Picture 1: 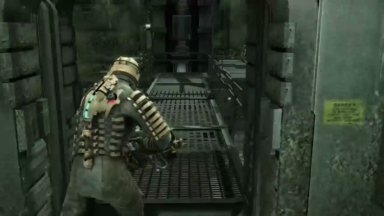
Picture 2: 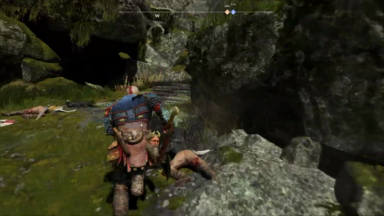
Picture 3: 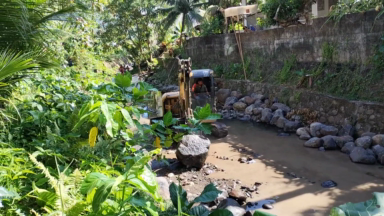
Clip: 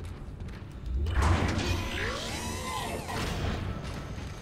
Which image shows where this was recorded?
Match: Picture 1